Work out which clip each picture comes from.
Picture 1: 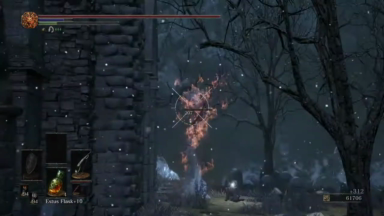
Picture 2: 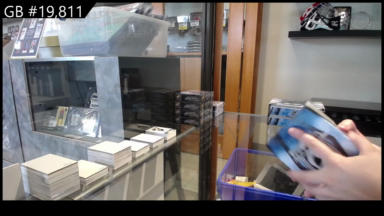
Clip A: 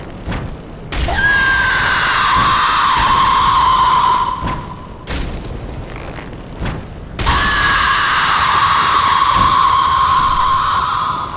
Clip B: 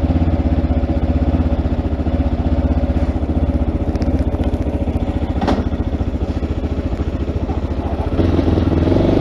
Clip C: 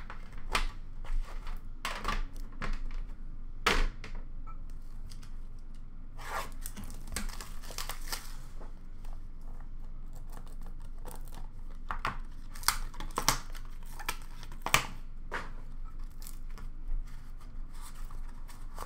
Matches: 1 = A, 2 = C